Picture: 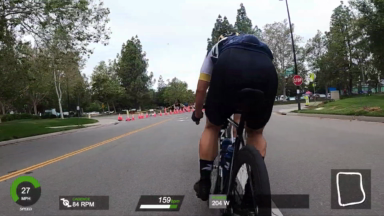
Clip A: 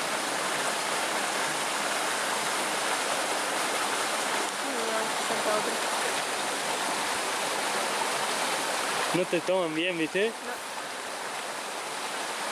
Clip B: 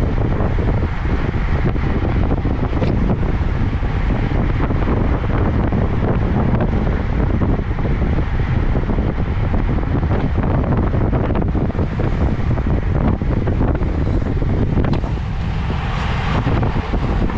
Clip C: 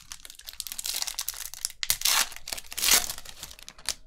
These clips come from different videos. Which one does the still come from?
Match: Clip B